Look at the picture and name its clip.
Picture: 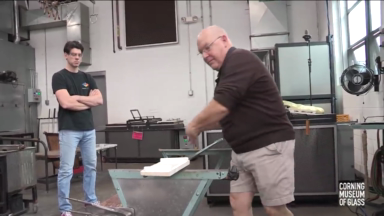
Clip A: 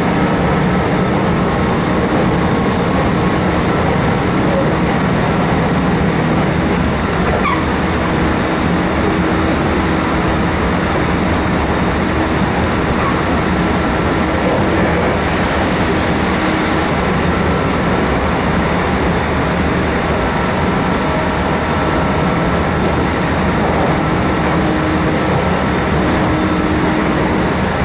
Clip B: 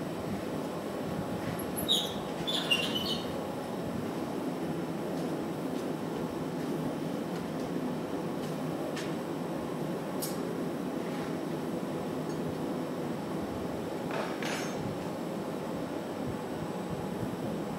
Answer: B